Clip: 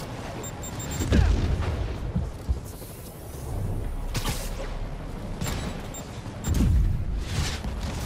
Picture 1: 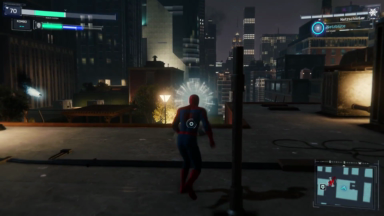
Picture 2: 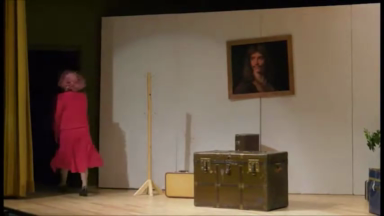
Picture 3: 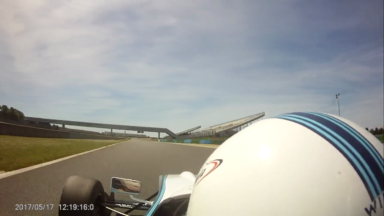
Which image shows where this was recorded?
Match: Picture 1